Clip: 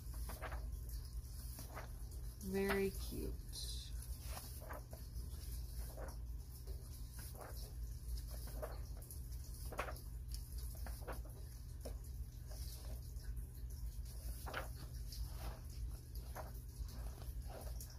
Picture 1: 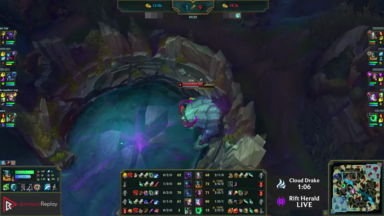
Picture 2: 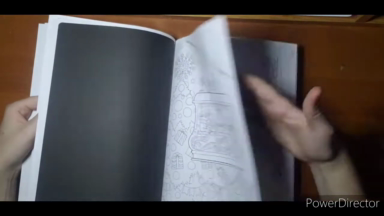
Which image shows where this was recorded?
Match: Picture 2